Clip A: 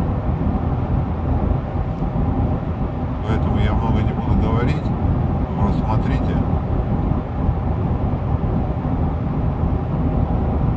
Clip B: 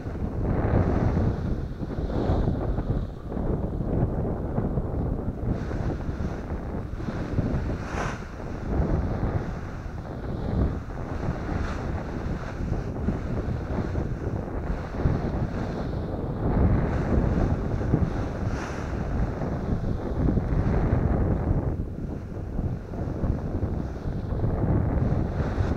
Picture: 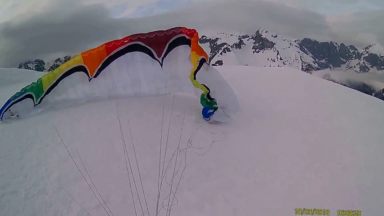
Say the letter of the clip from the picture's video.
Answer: B